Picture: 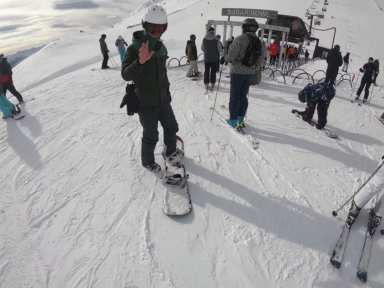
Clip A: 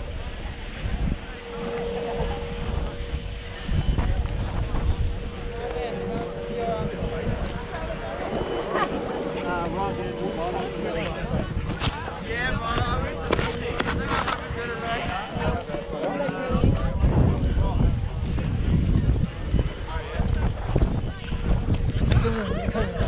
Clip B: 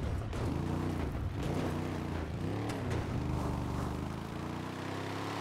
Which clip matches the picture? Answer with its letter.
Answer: A